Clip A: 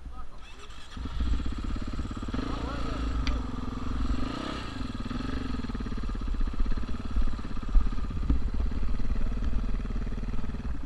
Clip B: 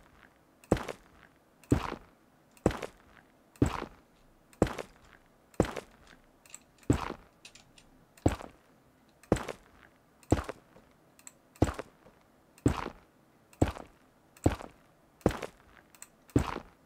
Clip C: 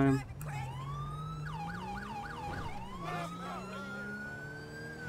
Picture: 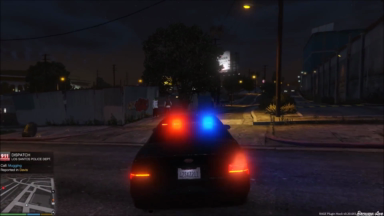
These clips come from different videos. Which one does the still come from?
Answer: C